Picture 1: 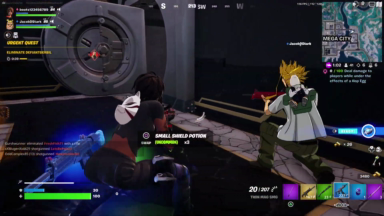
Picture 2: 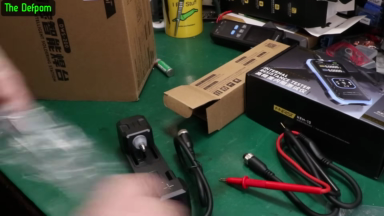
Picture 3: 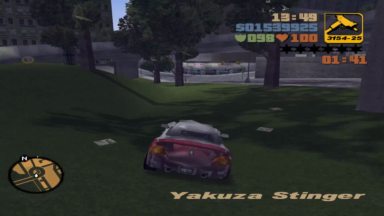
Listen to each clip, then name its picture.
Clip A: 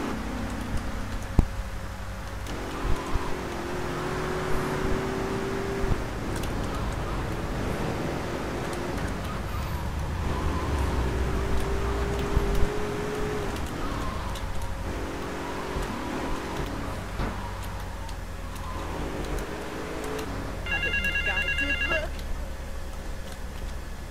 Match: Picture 3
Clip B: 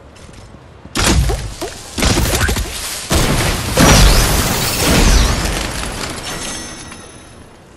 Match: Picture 1